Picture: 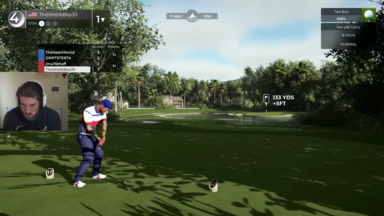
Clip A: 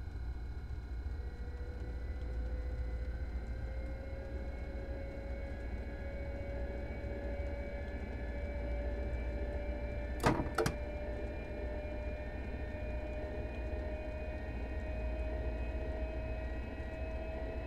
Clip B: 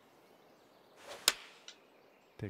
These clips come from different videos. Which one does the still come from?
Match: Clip B